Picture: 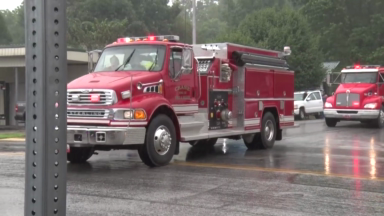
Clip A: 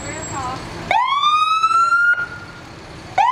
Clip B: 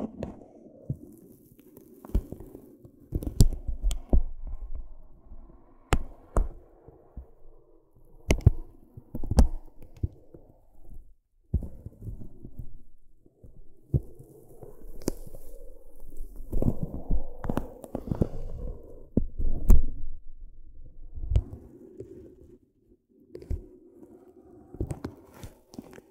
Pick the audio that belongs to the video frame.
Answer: A